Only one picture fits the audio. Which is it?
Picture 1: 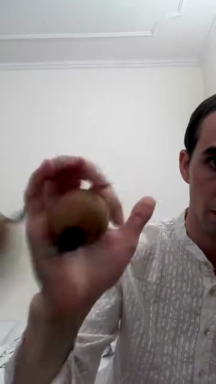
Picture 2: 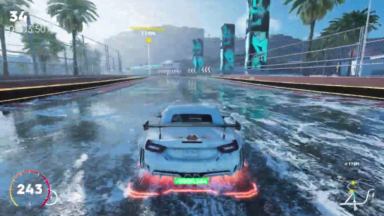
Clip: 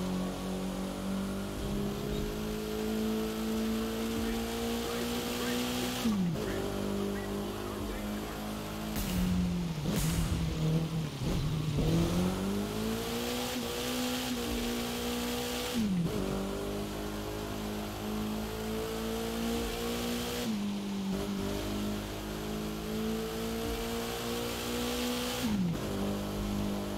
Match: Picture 2